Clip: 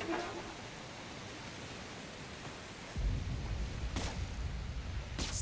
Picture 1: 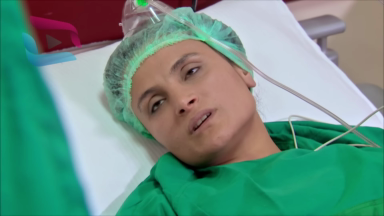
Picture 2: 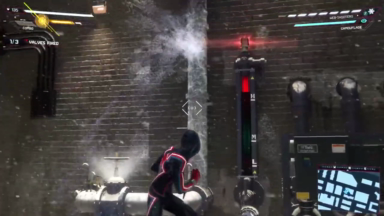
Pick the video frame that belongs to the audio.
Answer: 2